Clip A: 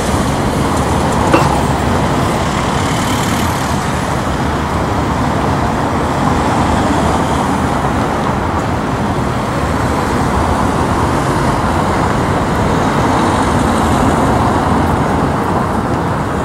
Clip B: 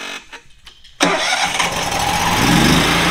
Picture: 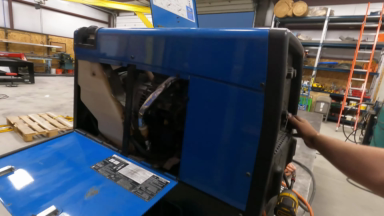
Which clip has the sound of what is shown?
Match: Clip B